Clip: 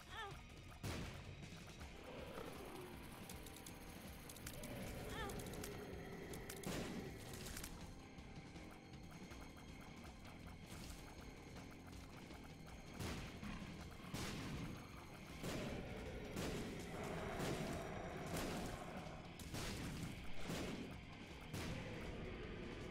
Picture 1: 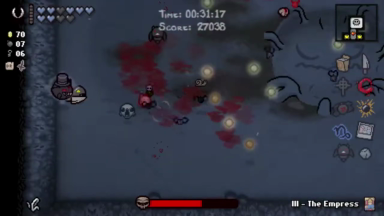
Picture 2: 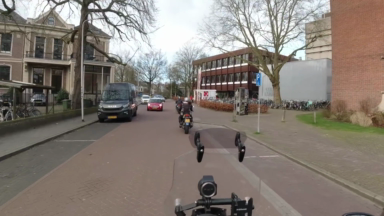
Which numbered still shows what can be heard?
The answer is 1